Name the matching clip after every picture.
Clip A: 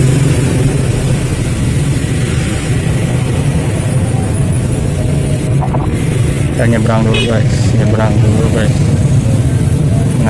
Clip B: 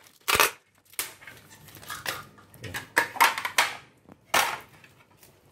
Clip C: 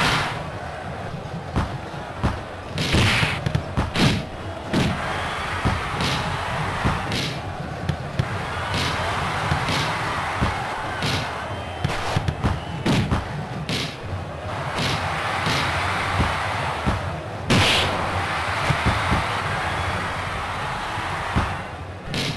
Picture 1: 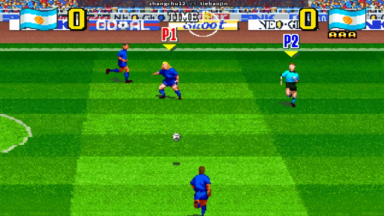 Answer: C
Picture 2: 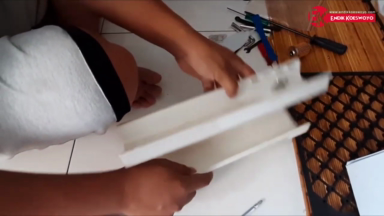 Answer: B